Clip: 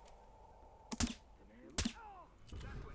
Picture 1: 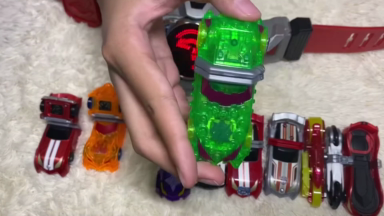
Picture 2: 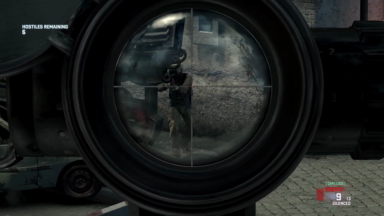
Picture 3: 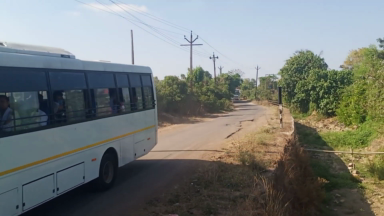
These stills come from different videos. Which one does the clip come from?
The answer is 2